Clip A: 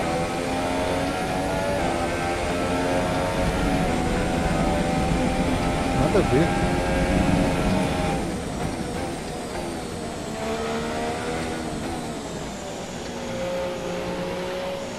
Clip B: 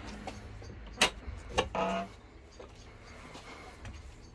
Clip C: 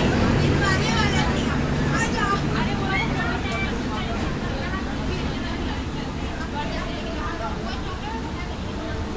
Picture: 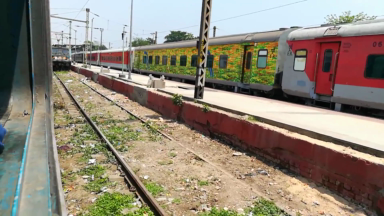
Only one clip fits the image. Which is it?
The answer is C